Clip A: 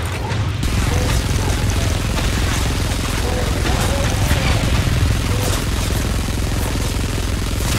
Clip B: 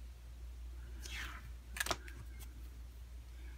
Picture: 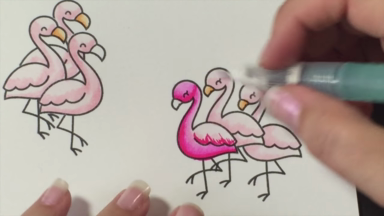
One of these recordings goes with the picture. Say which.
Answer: B